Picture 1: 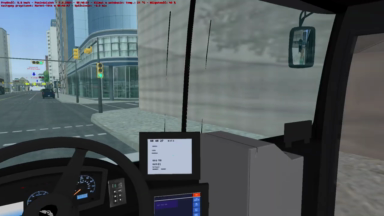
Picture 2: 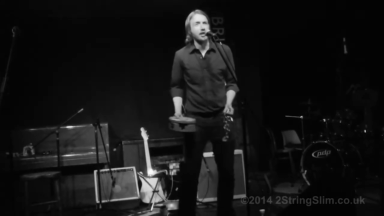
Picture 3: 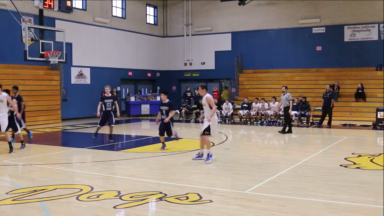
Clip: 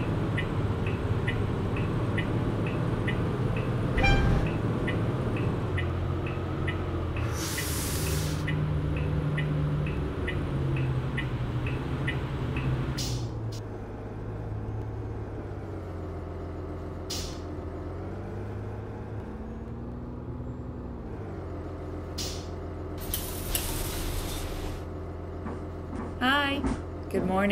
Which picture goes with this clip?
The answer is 1